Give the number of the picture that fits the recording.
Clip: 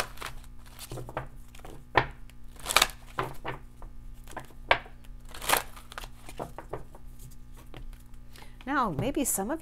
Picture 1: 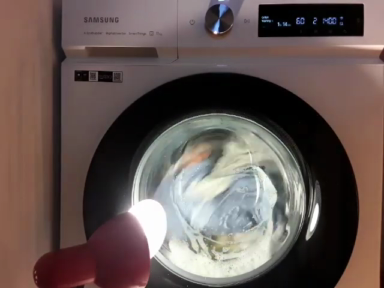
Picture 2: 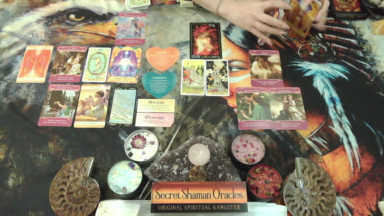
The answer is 2